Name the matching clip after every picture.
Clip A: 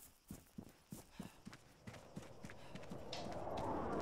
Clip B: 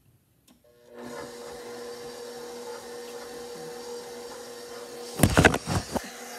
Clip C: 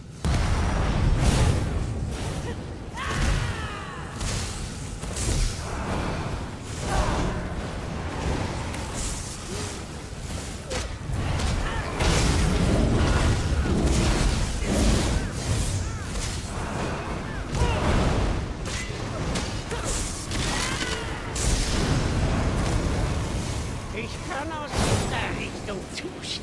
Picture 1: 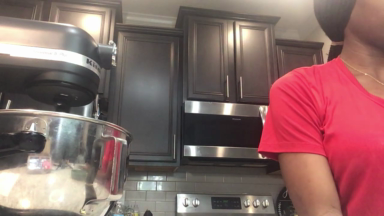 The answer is B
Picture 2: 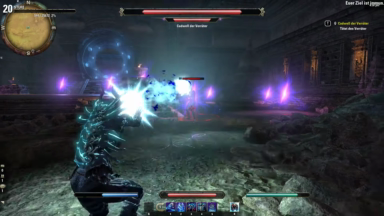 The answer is C